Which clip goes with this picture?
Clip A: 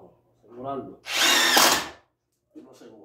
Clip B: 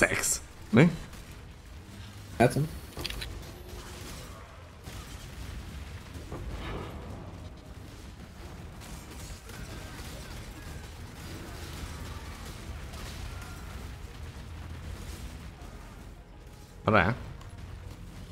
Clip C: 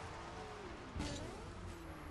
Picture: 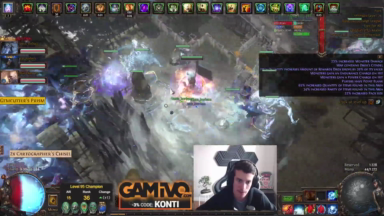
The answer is B